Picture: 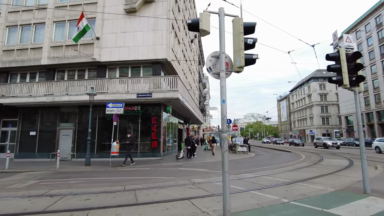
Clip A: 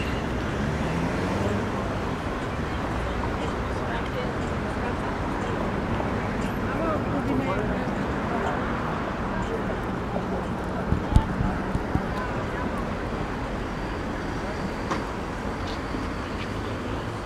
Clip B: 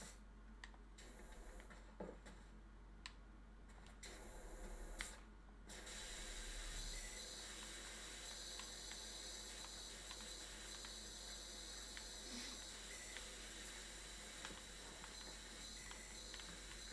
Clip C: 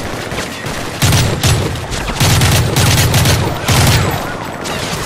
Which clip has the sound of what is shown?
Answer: A